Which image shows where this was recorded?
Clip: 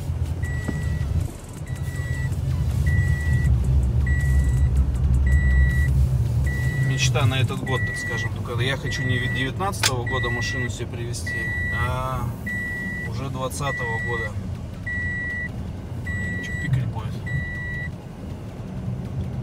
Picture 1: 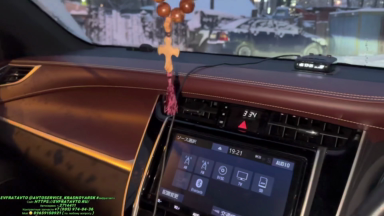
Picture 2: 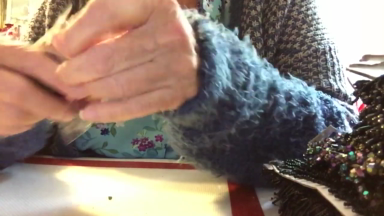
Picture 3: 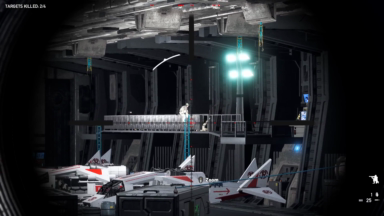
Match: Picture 1